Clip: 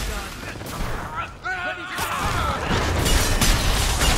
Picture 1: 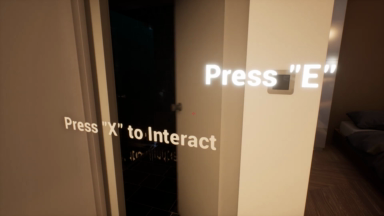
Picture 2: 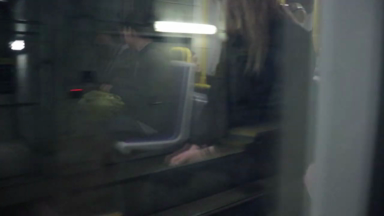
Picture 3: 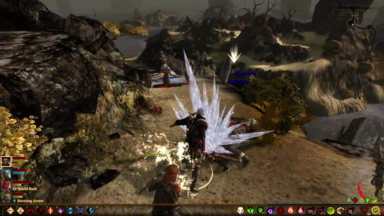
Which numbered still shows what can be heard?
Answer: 3